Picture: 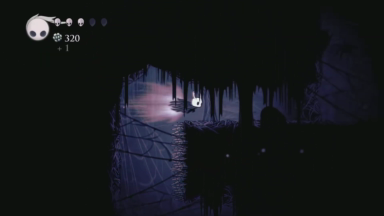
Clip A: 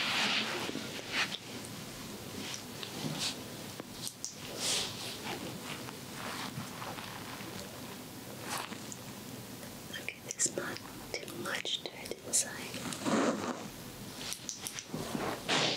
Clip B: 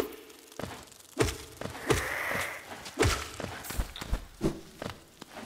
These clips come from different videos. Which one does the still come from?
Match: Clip B